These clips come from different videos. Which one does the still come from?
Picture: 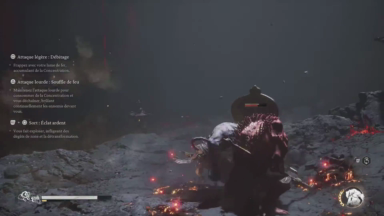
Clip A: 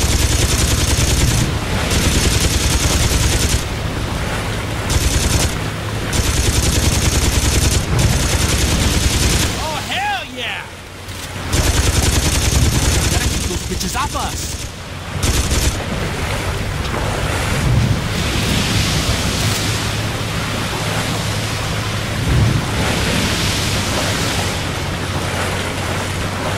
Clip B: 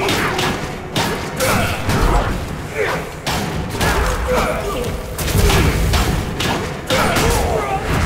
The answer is B